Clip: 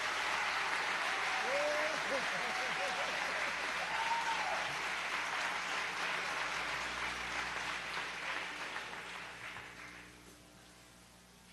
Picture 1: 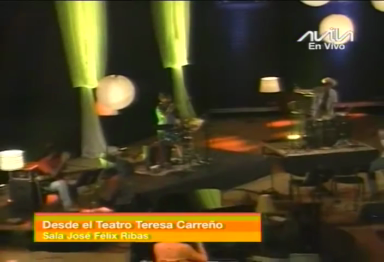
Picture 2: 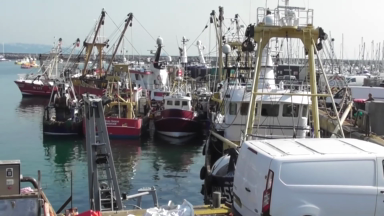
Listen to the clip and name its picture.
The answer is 1